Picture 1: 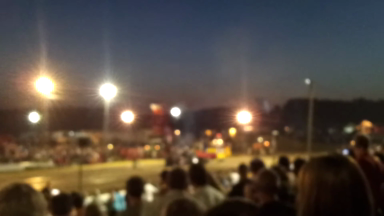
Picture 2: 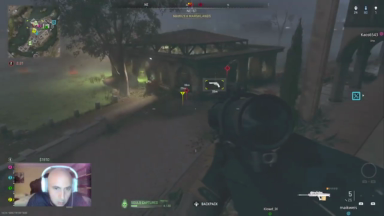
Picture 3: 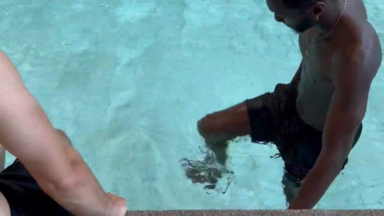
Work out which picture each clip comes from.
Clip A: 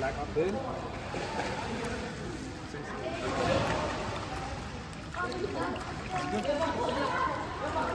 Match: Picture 3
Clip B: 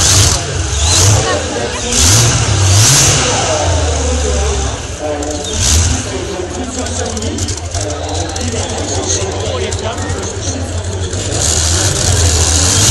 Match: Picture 1